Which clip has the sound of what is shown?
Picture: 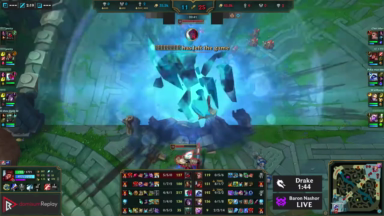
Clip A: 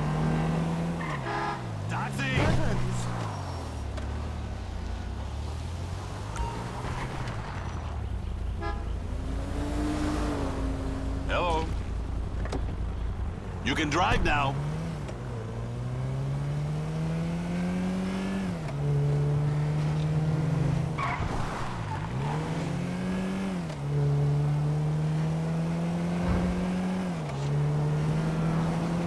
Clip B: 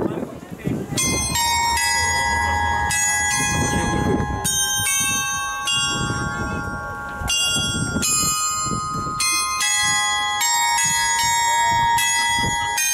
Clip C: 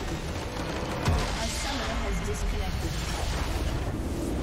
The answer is C